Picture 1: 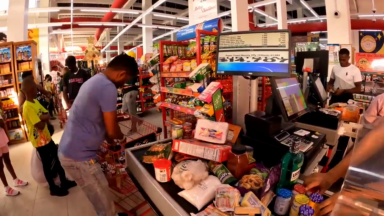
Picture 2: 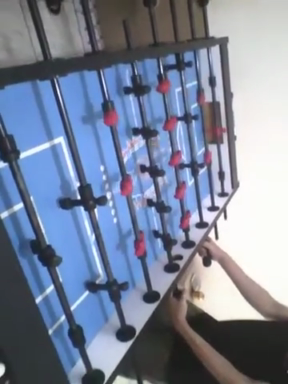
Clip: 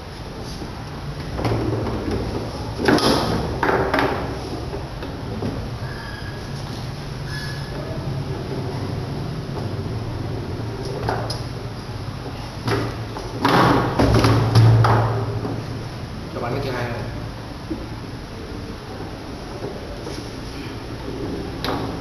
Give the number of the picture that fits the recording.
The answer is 2